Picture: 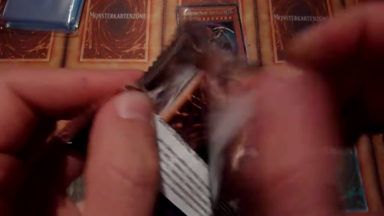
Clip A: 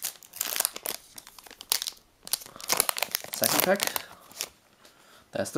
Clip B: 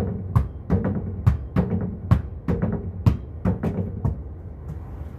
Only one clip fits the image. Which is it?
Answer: A